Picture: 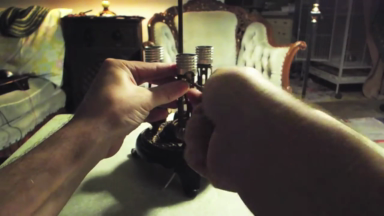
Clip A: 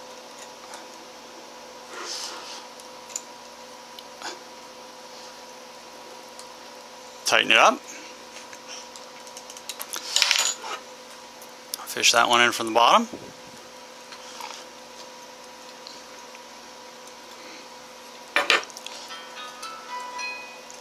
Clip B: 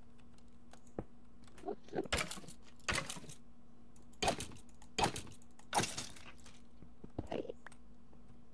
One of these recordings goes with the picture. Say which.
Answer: A